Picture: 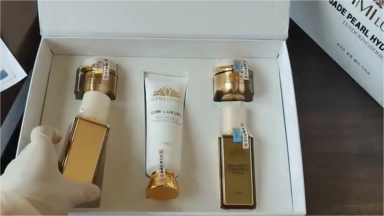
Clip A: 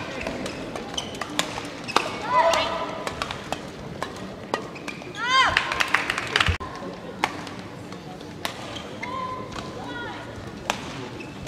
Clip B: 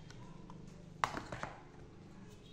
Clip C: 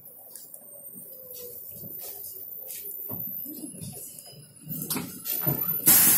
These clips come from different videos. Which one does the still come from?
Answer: B